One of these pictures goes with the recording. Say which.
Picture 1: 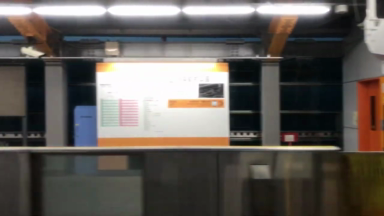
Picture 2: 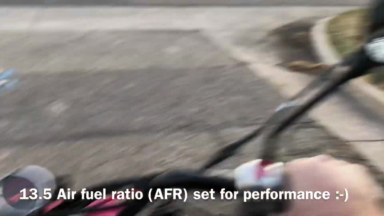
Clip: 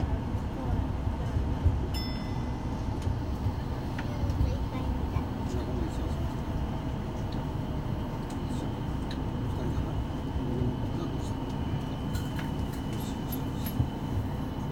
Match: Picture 1